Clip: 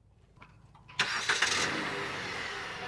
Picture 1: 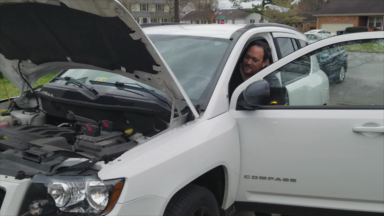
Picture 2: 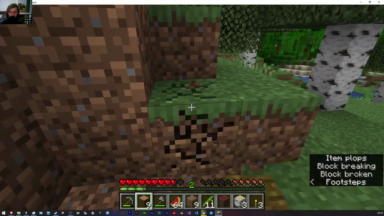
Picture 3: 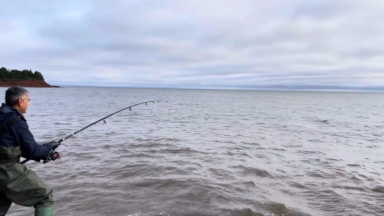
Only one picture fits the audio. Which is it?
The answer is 1